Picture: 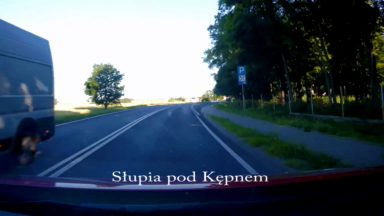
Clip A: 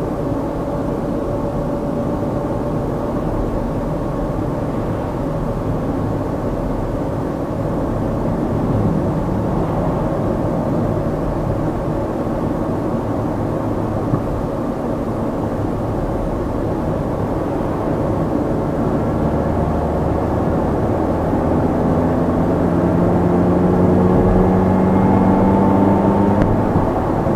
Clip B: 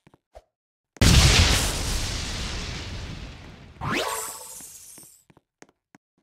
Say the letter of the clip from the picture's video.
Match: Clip A